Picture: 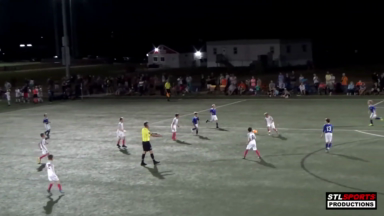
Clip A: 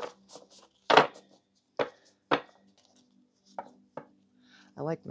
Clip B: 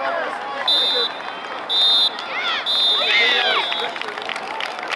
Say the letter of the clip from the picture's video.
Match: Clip B